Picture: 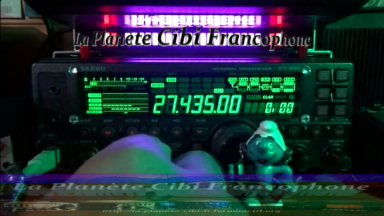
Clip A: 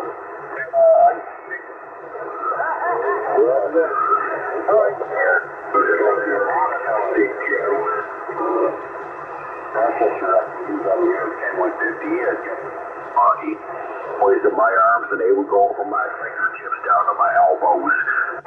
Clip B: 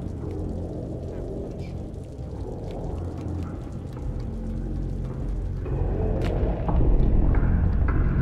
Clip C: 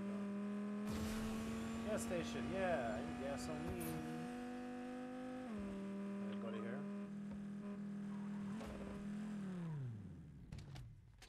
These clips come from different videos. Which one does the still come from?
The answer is A